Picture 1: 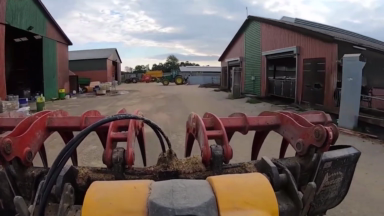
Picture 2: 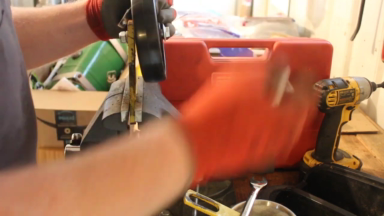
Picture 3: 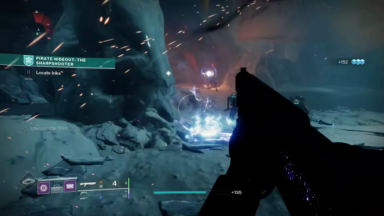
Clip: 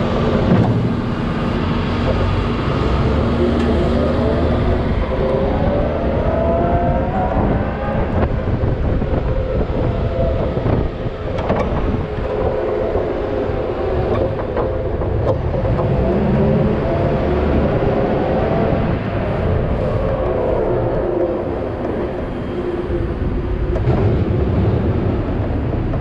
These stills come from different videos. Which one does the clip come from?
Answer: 1